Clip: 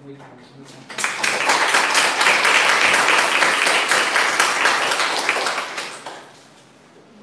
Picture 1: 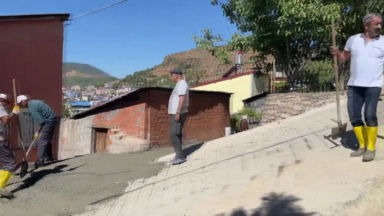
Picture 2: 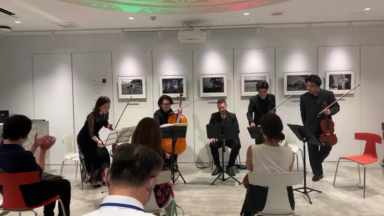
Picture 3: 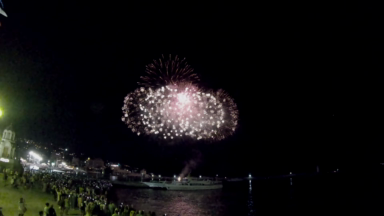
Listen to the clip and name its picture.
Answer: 2